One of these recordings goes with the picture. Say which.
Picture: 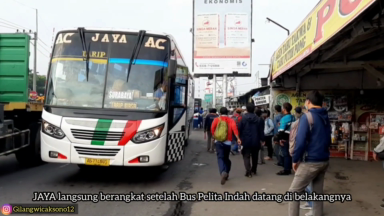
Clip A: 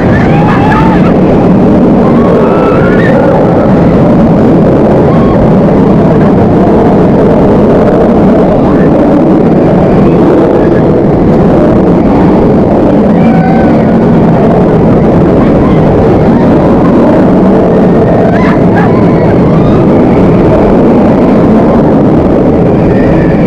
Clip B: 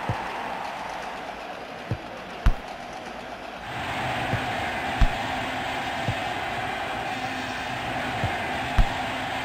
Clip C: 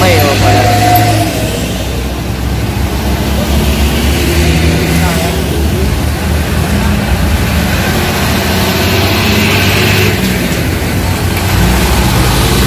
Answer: C